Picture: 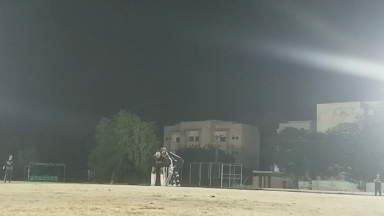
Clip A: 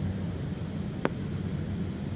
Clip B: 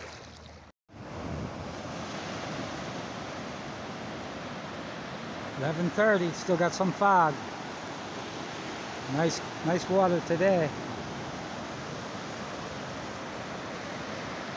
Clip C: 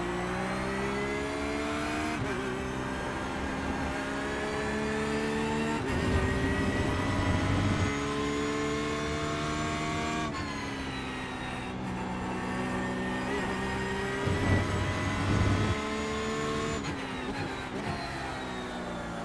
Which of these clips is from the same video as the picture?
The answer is A